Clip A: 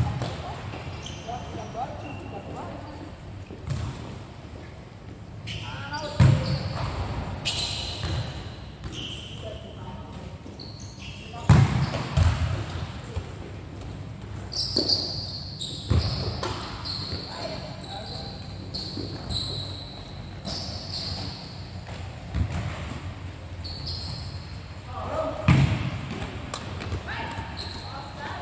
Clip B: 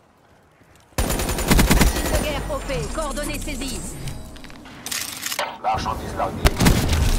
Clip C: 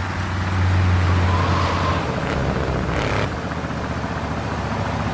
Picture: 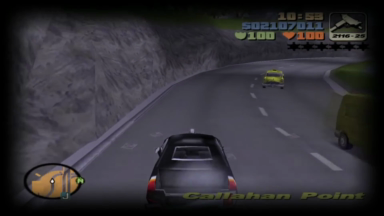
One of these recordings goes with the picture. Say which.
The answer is C